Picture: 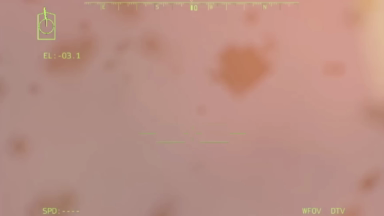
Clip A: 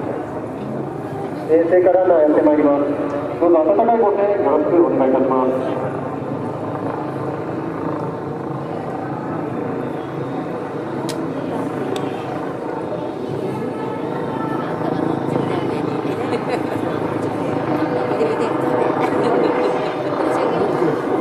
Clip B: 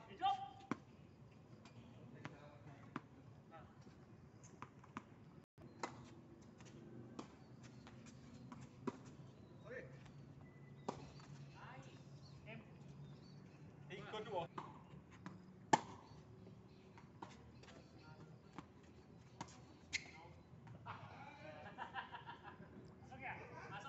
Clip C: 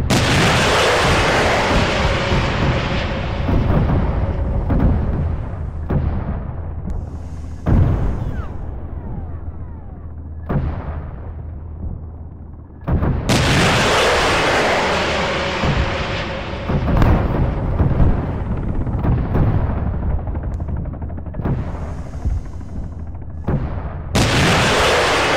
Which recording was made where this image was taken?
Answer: C